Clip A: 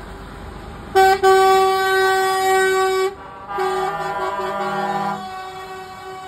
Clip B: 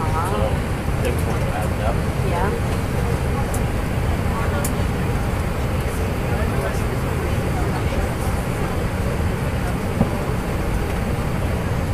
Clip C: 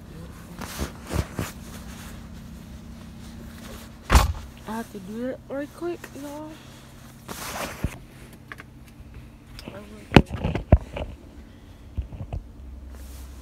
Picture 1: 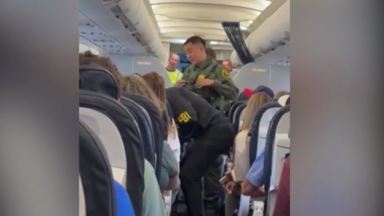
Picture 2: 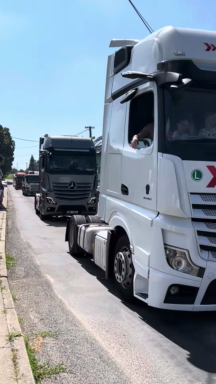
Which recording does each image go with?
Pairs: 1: B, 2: A